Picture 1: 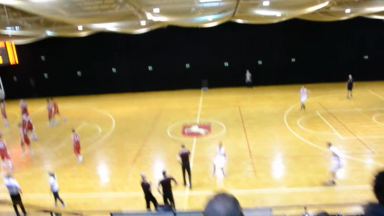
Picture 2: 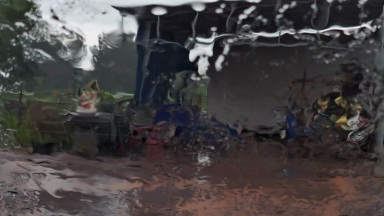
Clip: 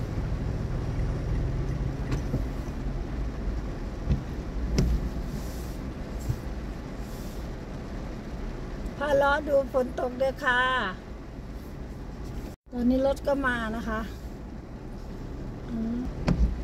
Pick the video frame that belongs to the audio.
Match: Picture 2